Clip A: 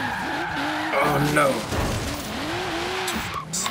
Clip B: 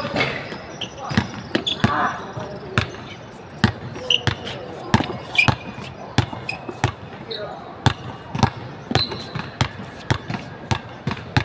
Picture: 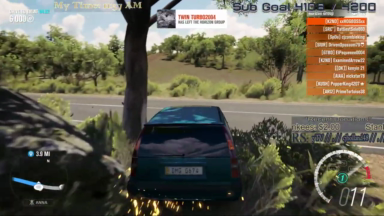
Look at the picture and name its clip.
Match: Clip A